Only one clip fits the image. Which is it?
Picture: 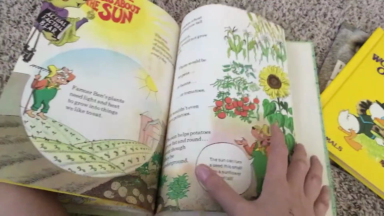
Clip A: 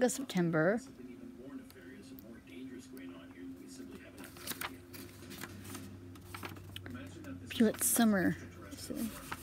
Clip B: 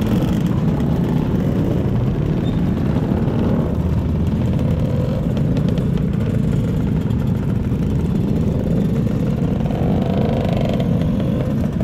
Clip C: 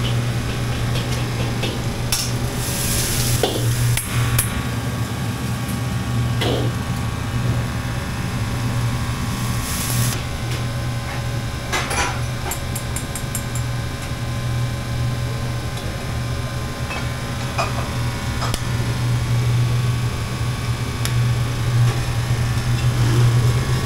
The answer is A